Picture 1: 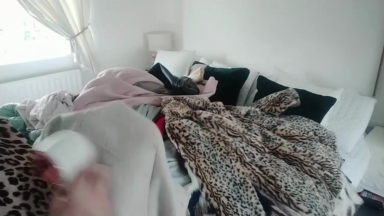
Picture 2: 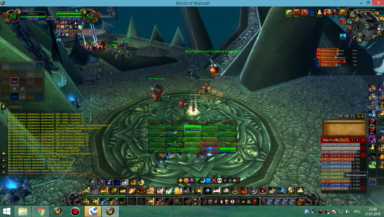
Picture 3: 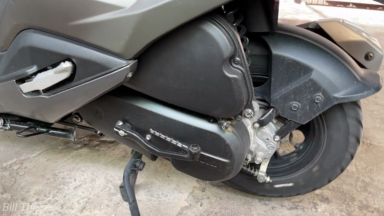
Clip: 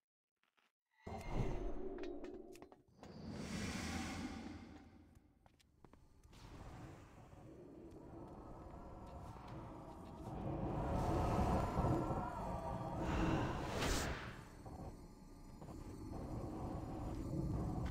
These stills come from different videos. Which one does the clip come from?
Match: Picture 2